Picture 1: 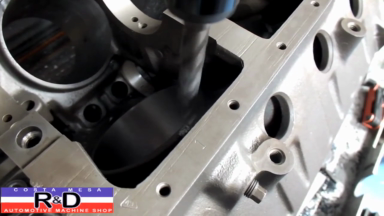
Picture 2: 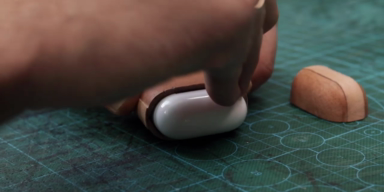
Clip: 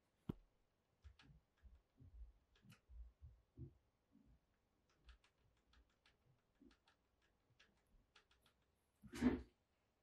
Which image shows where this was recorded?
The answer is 2